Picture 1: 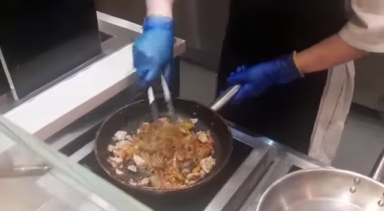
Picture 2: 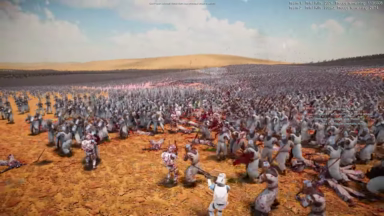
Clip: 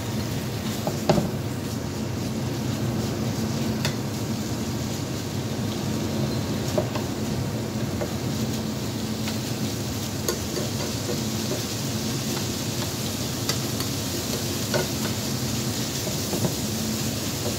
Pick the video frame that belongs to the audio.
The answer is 1